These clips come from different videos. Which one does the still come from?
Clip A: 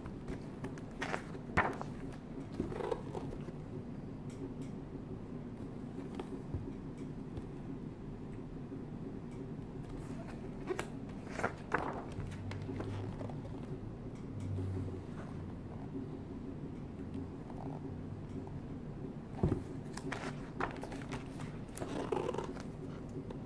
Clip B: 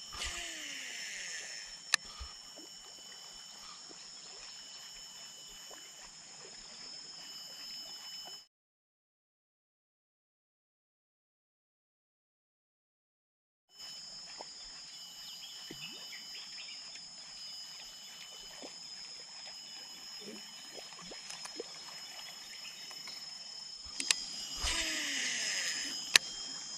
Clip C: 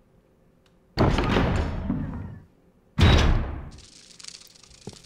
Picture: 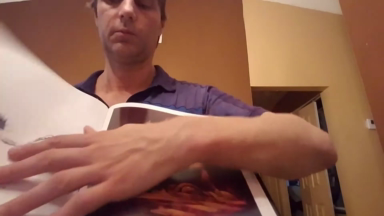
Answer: A